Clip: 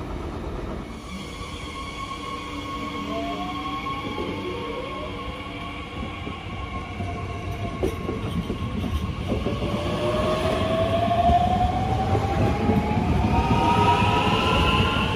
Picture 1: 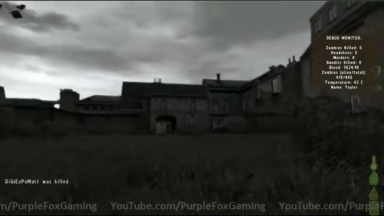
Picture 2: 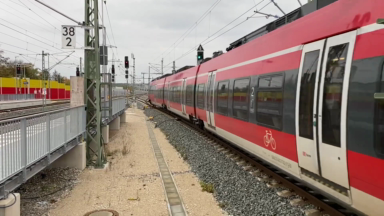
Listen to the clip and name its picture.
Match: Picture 2